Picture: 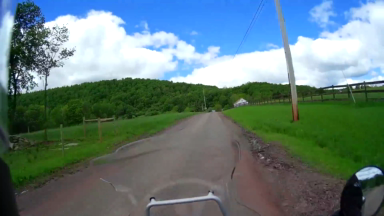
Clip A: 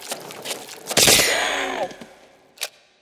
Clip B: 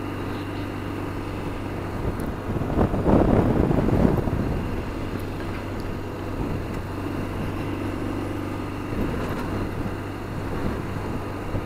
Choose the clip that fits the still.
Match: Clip B